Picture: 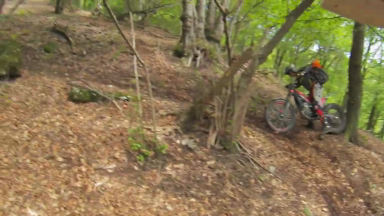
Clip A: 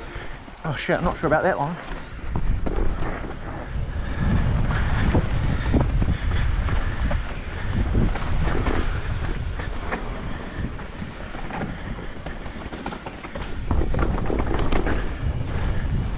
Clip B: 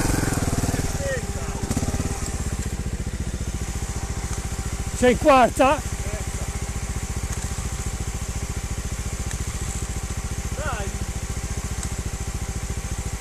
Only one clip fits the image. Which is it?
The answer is B